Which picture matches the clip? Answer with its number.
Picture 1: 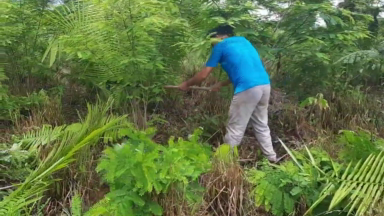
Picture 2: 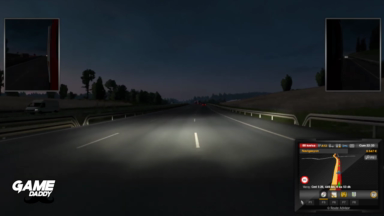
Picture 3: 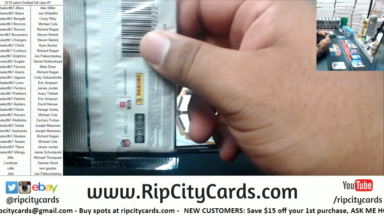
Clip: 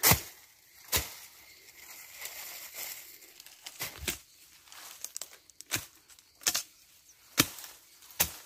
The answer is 1